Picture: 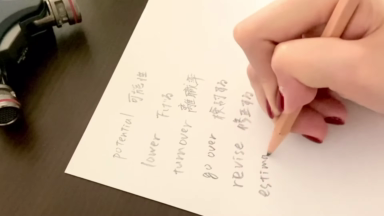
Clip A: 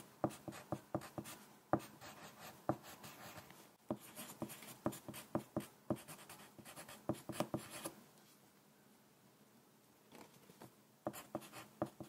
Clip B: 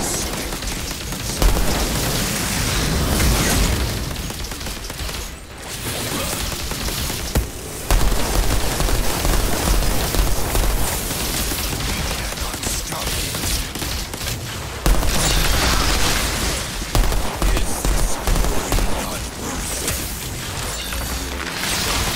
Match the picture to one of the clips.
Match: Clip A